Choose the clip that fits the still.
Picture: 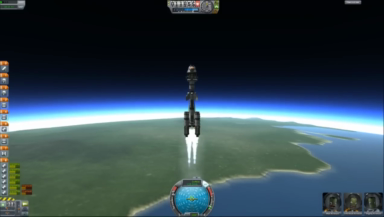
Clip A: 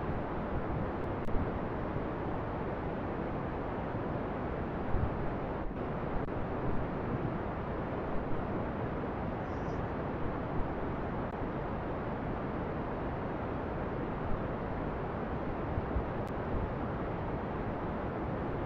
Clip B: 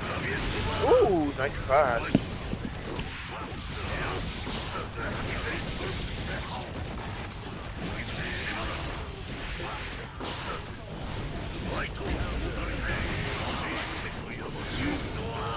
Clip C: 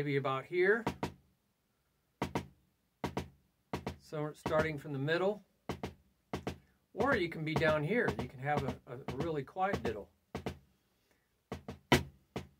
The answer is A